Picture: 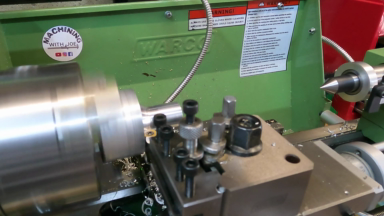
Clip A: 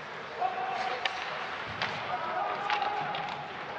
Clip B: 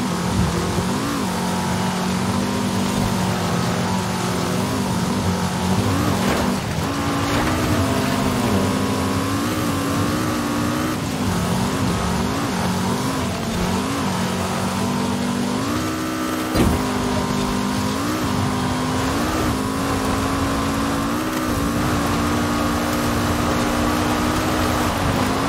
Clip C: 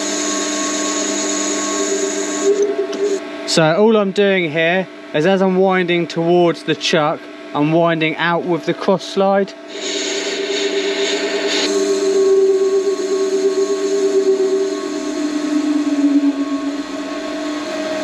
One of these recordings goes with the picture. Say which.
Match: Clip C